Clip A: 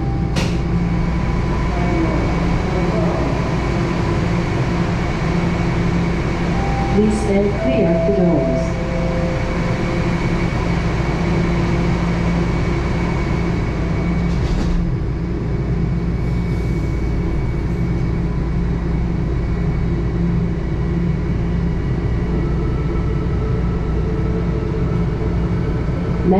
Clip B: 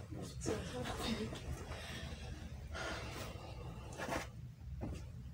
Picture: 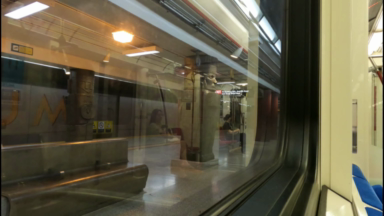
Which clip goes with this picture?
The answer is A